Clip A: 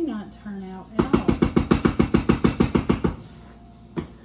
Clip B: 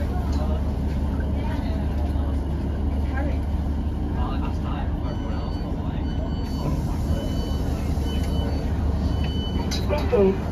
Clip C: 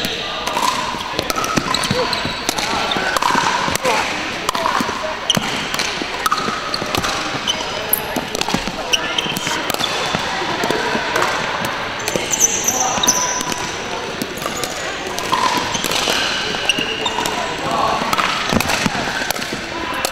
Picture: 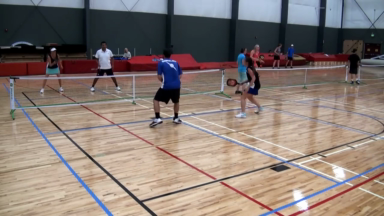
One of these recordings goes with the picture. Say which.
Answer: C